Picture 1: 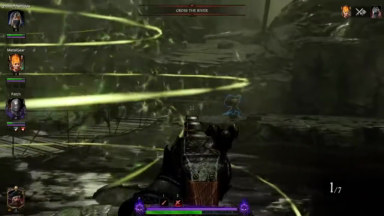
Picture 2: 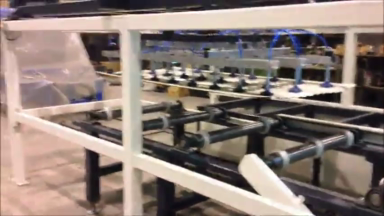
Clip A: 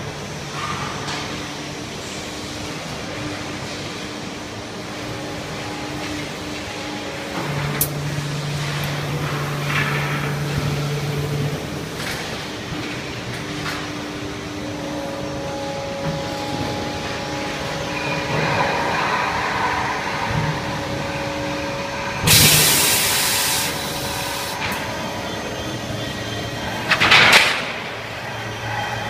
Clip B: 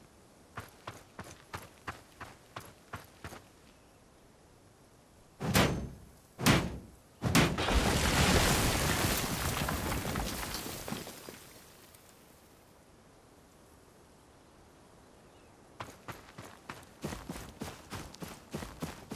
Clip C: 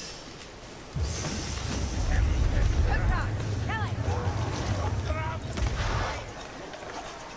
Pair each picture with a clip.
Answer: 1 C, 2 A